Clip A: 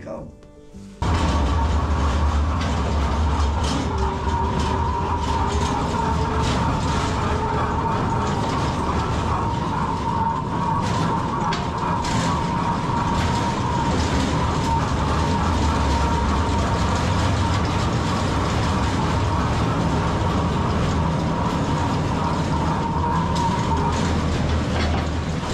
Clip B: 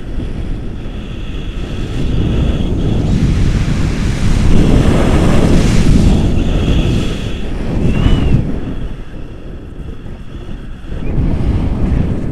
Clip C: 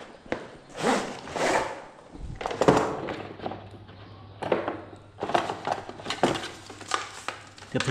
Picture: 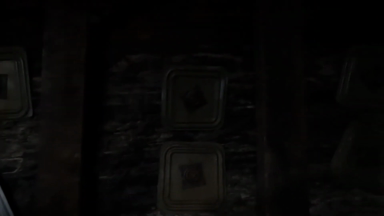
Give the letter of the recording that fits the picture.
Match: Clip A